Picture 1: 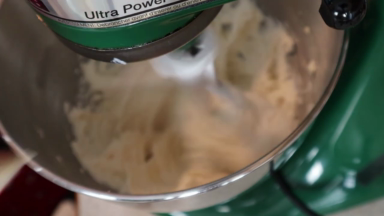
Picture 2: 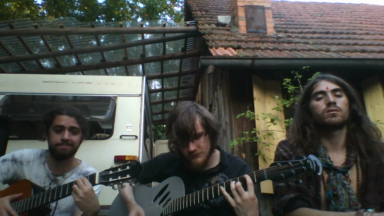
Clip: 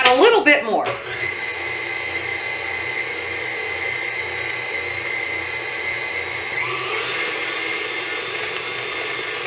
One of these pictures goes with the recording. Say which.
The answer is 1